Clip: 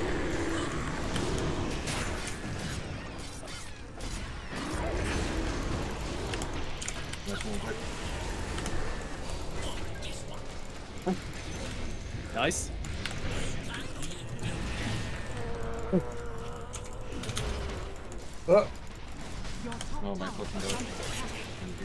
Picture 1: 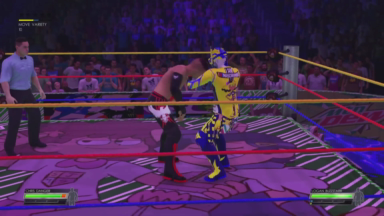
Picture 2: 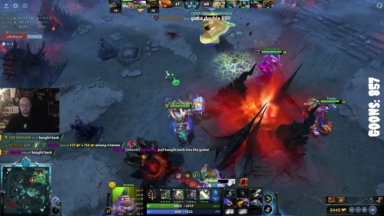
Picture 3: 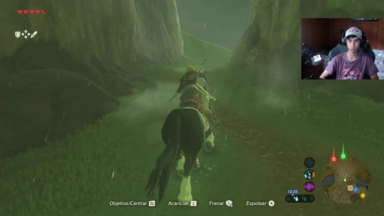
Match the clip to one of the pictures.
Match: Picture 2